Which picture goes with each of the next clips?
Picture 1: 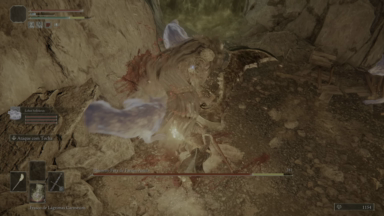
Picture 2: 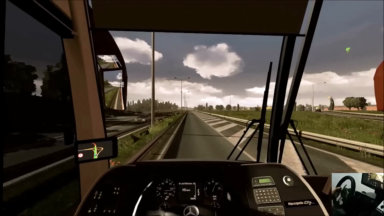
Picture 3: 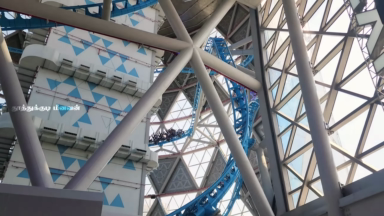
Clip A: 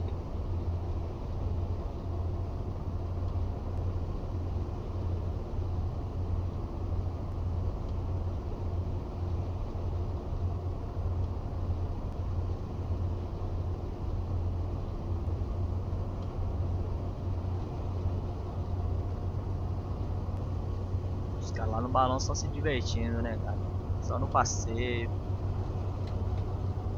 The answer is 2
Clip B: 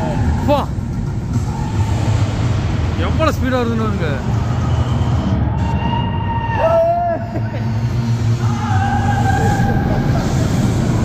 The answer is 3